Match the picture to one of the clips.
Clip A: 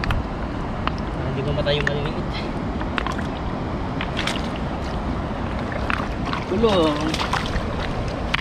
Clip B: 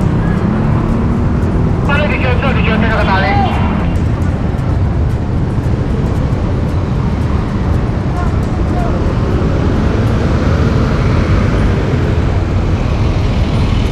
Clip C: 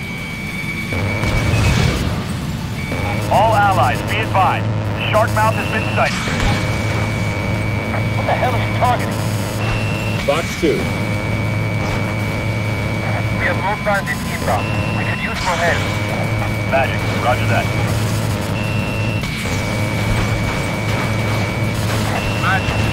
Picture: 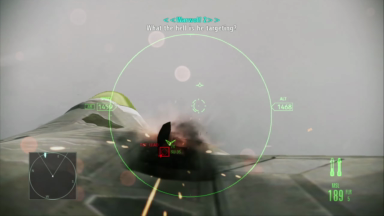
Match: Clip C